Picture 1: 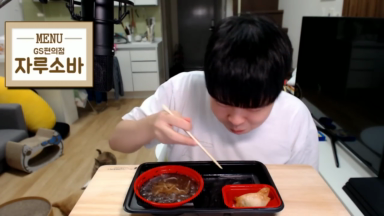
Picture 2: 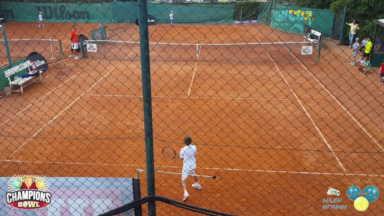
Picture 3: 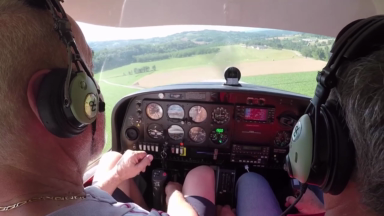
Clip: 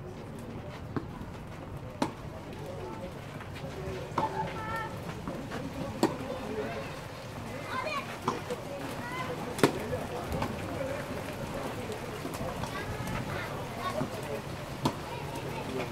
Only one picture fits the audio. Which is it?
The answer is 2